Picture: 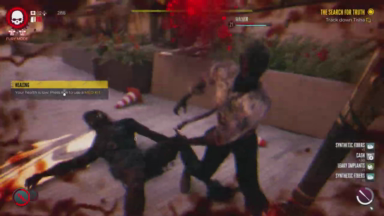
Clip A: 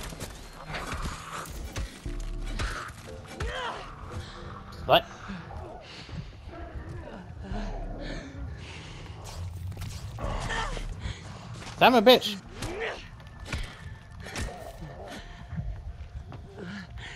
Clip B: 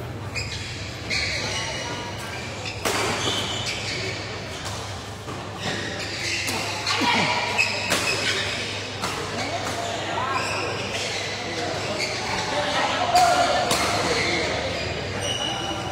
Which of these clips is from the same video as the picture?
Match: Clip A